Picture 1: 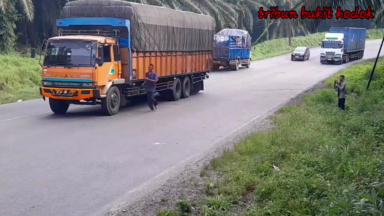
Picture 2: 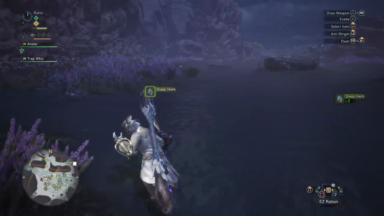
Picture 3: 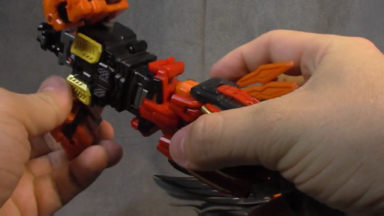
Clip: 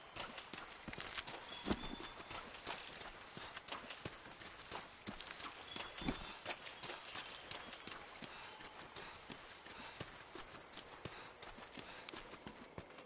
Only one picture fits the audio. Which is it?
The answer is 2